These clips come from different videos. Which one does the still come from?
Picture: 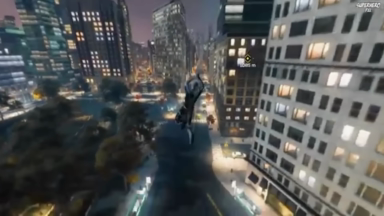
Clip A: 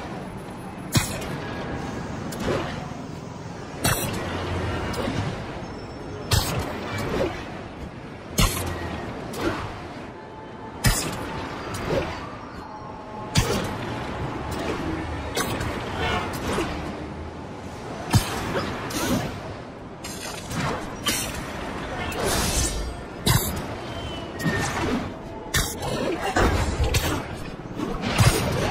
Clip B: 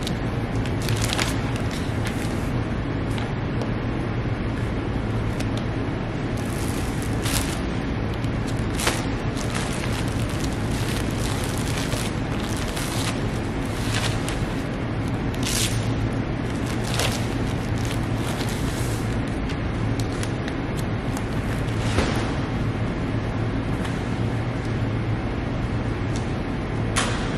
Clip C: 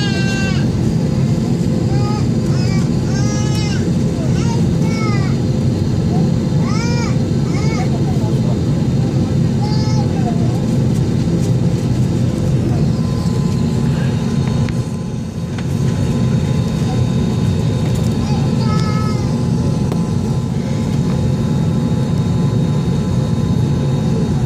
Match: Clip A